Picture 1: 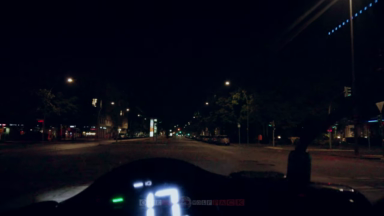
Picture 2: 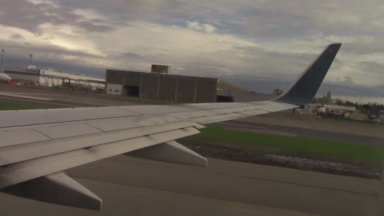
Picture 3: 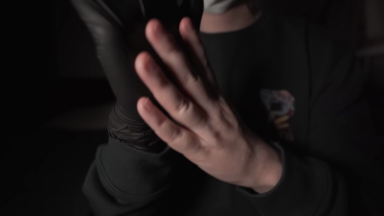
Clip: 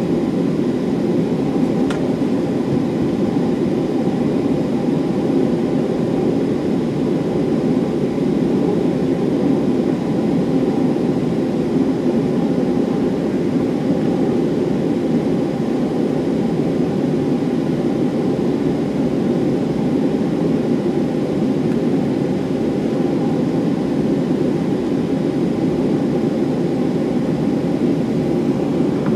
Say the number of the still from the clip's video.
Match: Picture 2